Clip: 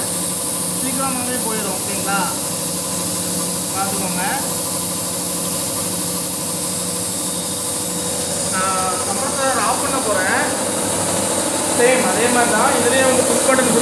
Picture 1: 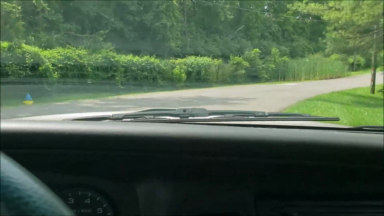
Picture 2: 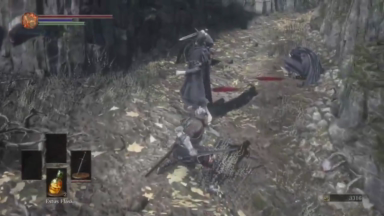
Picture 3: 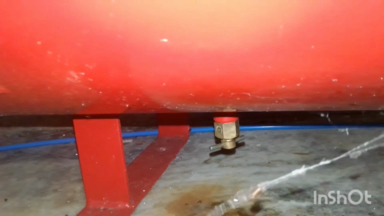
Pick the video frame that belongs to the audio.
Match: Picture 3